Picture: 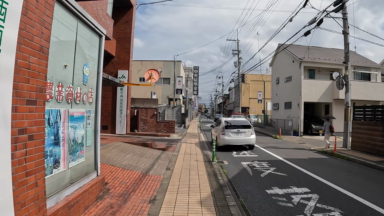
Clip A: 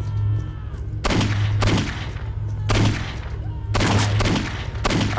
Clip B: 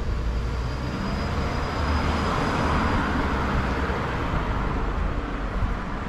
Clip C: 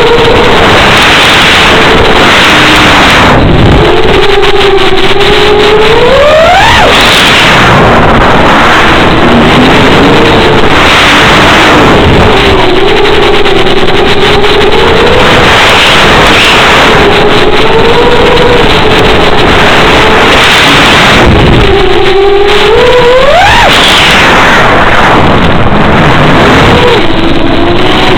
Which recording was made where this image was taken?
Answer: B